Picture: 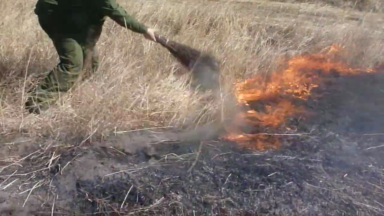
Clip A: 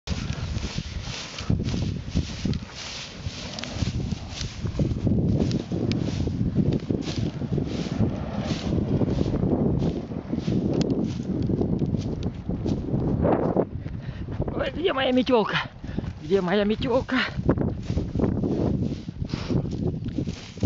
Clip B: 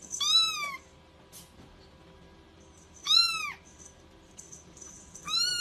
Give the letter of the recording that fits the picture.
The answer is A